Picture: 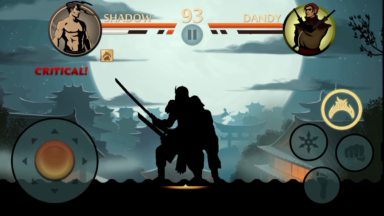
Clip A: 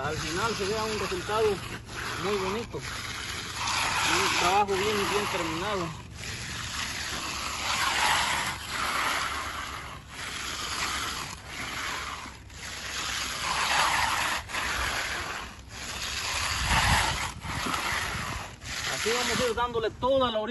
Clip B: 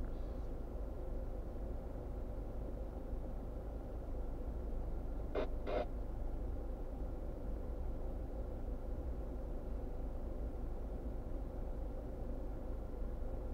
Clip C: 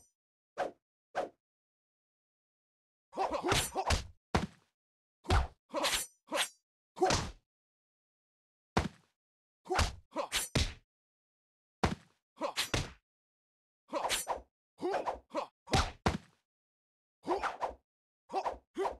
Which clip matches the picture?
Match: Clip C